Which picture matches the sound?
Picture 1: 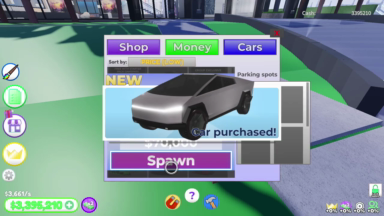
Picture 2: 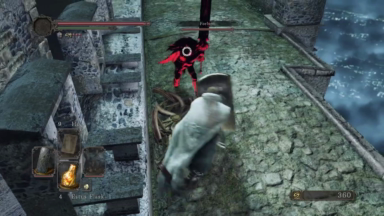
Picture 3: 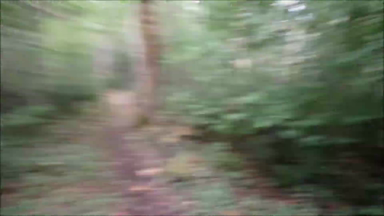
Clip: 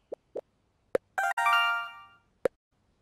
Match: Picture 1